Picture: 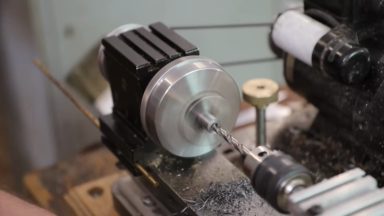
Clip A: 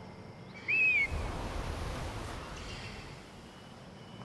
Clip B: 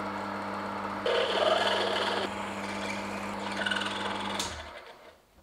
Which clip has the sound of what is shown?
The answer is B